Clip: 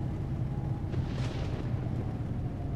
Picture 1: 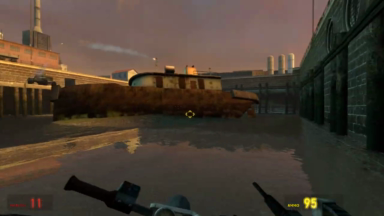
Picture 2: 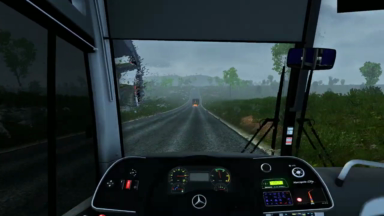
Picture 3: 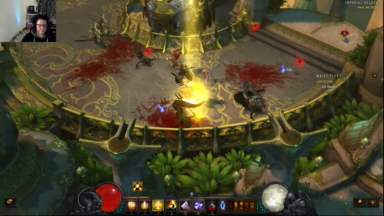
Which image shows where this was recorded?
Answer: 2